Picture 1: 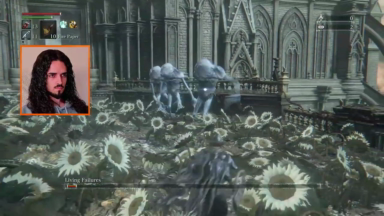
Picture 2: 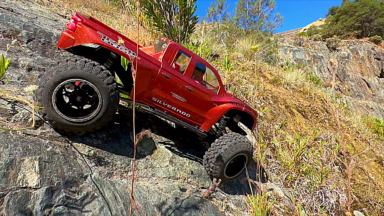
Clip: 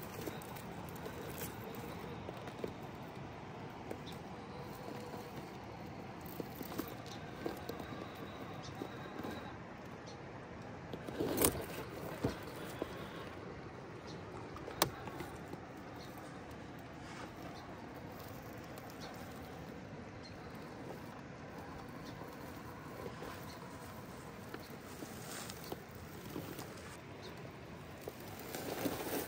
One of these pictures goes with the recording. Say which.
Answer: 2